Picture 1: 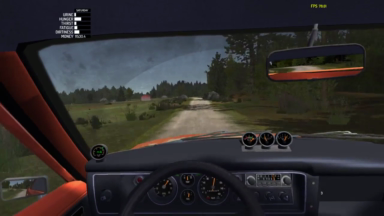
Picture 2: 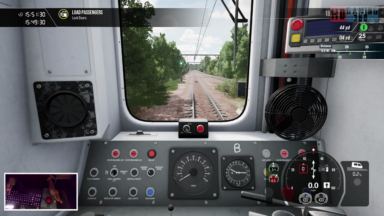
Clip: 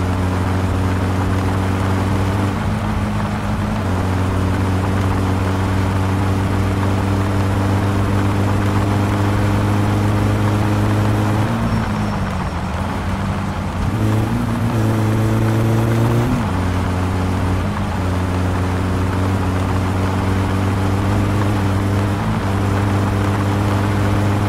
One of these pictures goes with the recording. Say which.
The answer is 1